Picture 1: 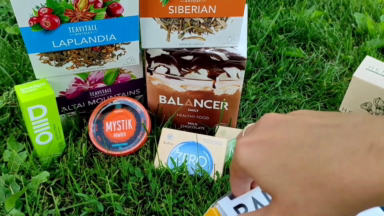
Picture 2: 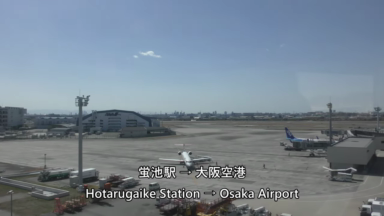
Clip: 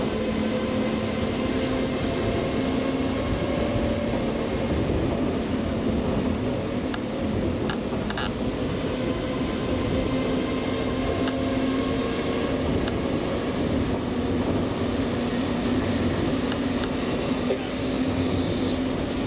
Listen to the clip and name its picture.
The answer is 2